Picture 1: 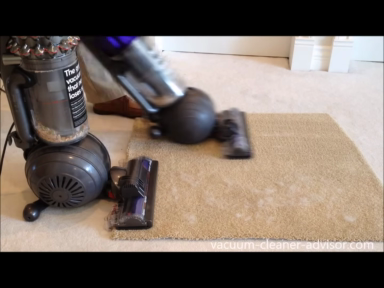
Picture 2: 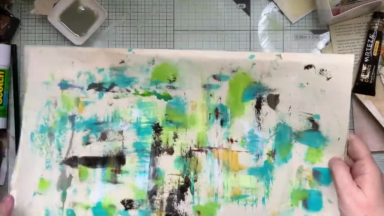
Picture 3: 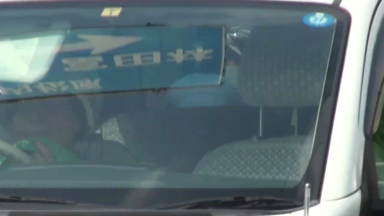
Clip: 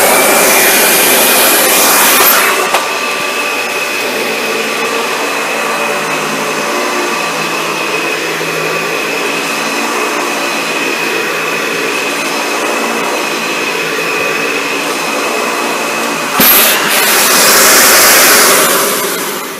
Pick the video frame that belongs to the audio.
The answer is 1